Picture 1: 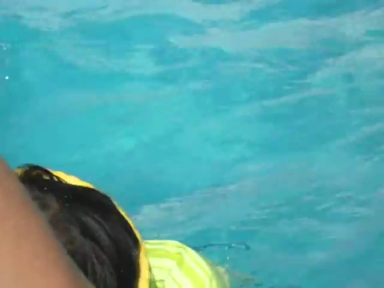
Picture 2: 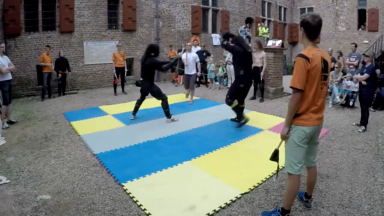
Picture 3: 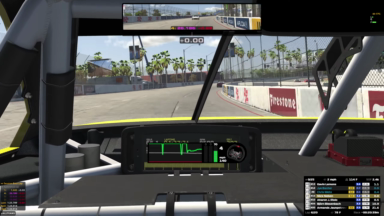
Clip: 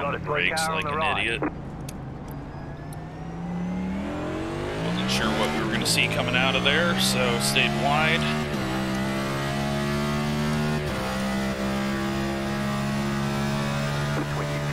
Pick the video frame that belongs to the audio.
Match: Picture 3